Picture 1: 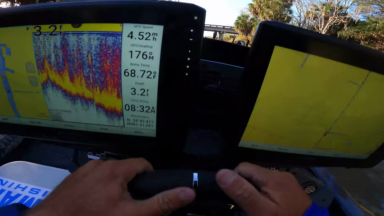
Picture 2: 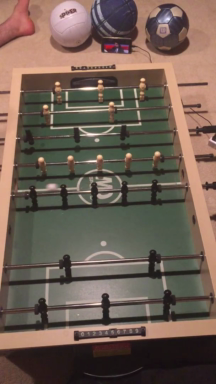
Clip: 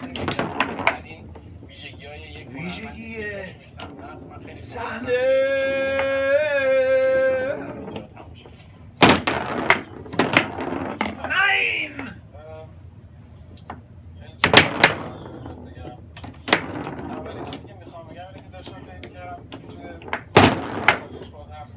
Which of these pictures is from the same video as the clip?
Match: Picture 2